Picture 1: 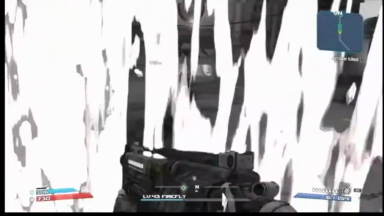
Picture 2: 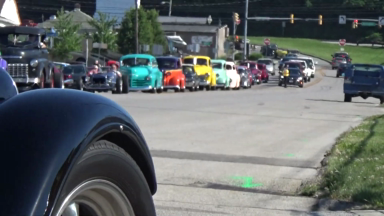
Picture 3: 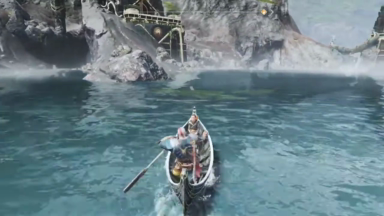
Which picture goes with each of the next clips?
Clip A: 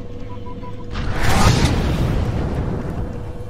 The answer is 1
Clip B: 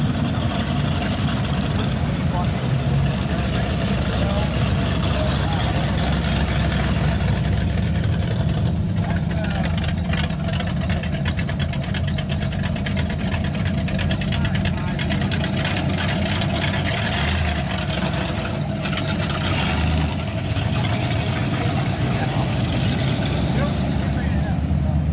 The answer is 2